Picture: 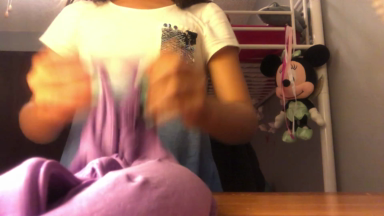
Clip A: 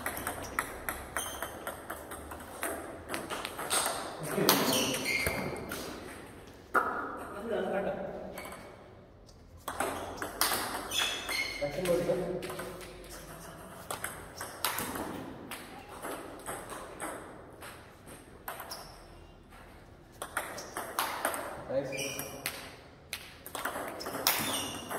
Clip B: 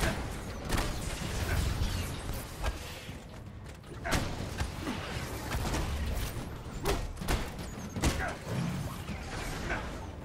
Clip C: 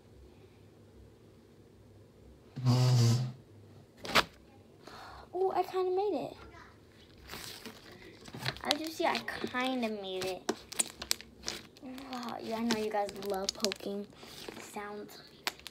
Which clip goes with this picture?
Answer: C